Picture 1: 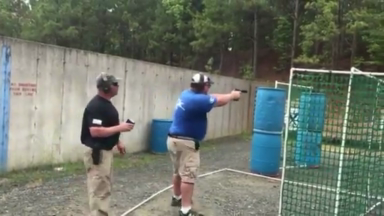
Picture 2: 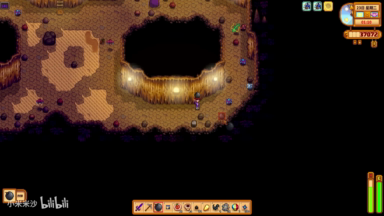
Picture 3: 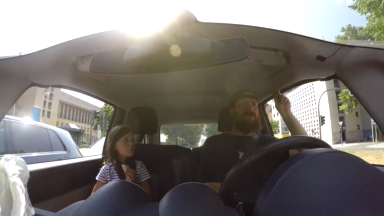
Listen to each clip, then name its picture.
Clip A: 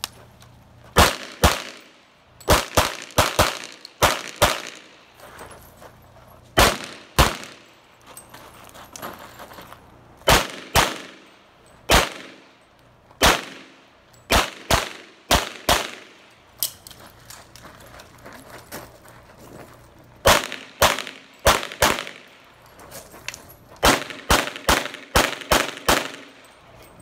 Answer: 1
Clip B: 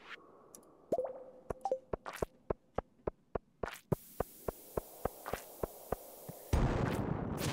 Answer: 2